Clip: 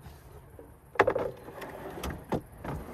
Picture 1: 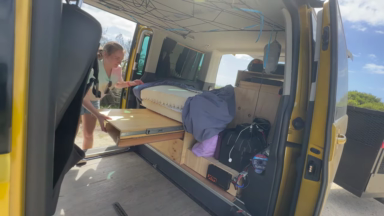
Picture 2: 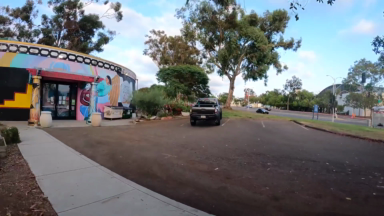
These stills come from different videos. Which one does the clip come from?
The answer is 1